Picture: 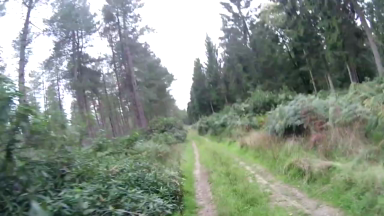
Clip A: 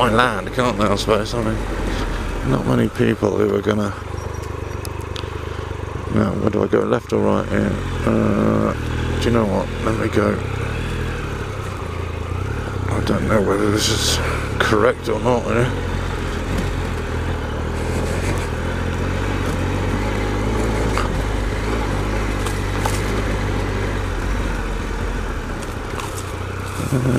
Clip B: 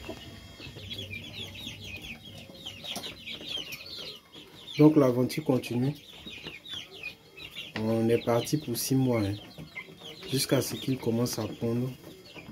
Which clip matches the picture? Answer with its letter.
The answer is A